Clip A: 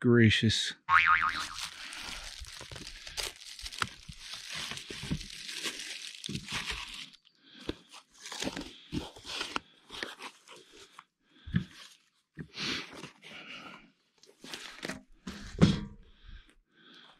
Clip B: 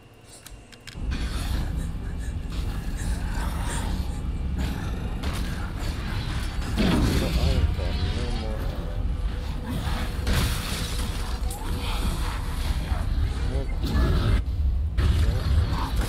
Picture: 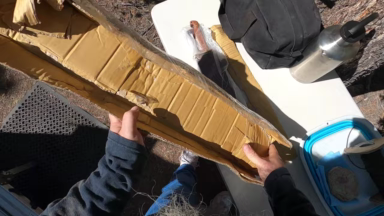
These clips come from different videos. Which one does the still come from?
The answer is A